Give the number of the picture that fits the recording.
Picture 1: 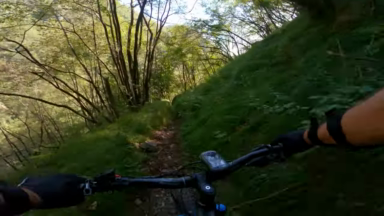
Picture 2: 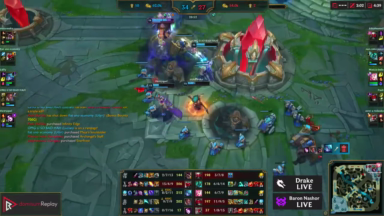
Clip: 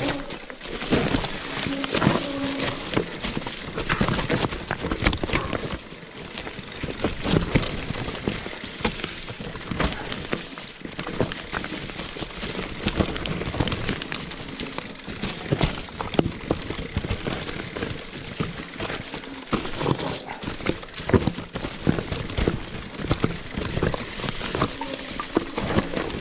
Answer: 1